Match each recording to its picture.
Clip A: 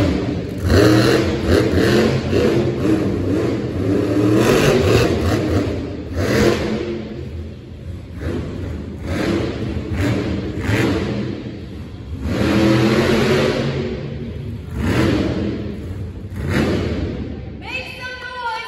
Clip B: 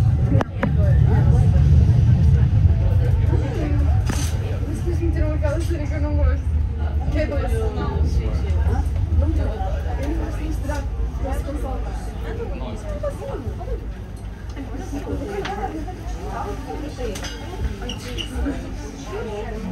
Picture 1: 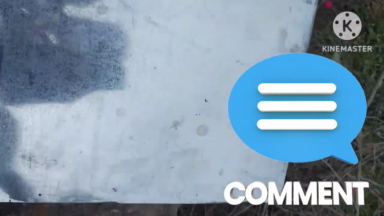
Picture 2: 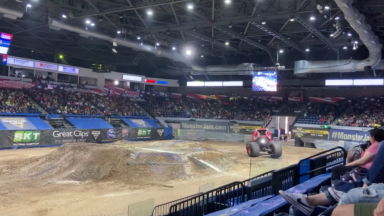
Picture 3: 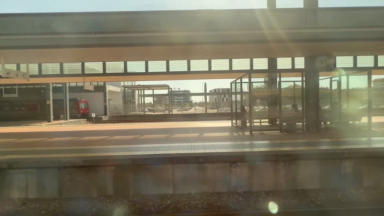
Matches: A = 2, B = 3